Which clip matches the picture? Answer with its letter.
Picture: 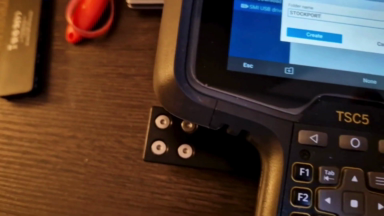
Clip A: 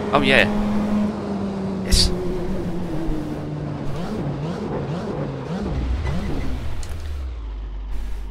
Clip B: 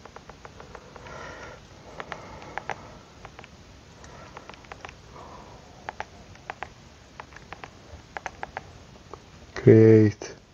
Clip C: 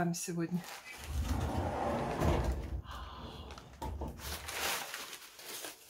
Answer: B